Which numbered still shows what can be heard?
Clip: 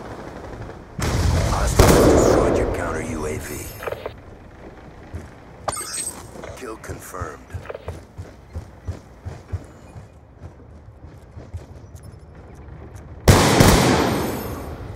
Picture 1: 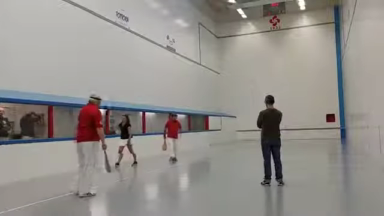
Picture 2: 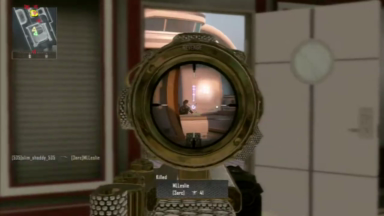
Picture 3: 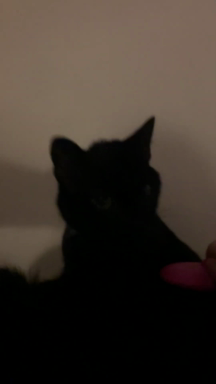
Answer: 2